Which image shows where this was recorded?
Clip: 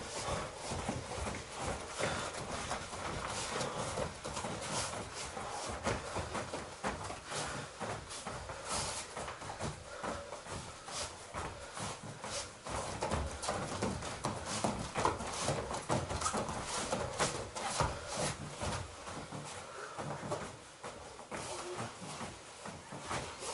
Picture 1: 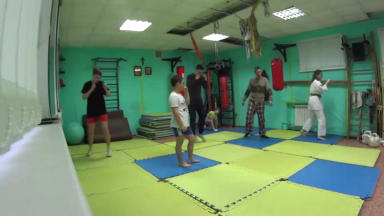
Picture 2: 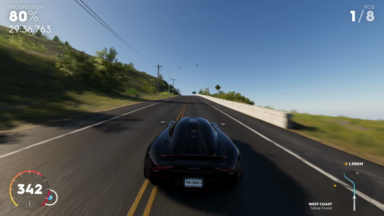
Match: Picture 1